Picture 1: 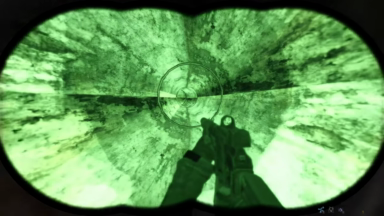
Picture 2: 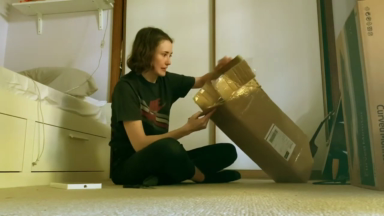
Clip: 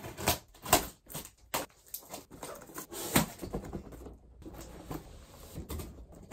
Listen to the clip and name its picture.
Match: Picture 2